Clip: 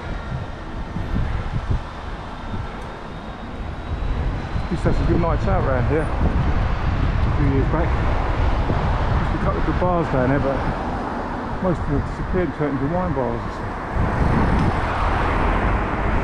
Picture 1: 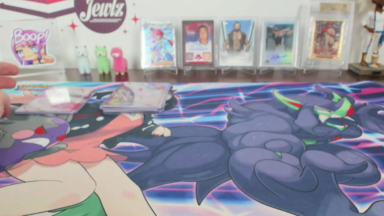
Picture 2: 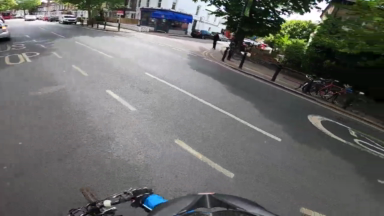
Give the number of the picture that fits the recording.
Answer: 2